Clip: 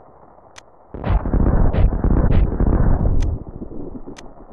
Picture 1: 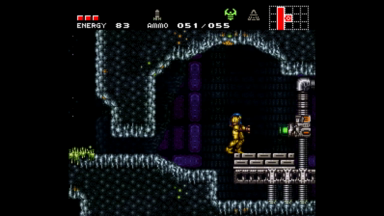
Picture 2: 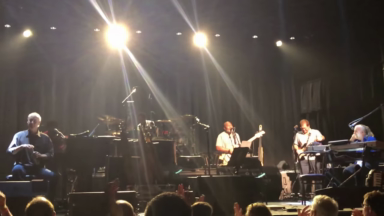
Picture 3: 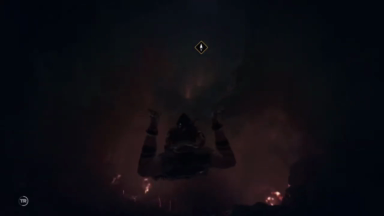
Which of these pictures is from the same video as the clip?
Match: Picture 1